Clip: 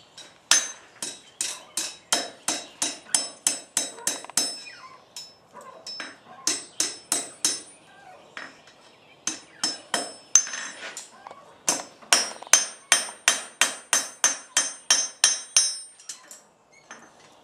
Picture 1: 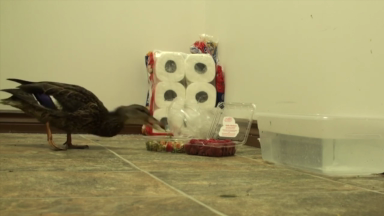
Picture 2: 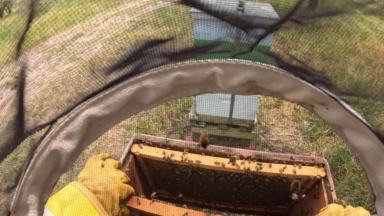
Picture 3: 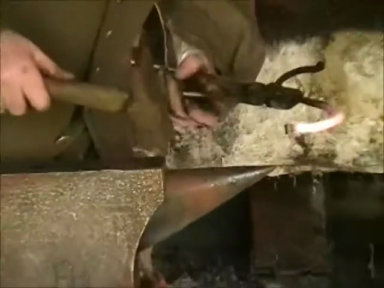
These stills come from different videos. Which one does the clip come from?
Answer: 3